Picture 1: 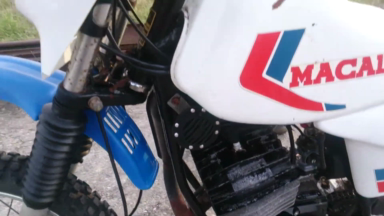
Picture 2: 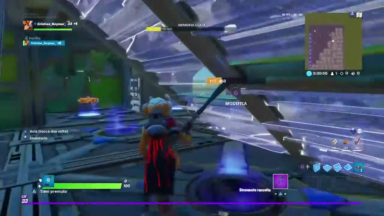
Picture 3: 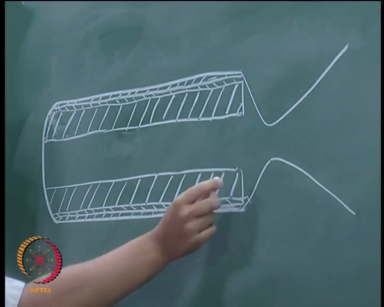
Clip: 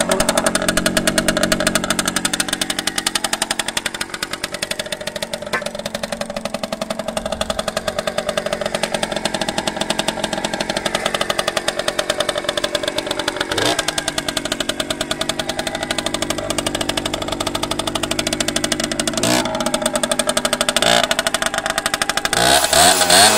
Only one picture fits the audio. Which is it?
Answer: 1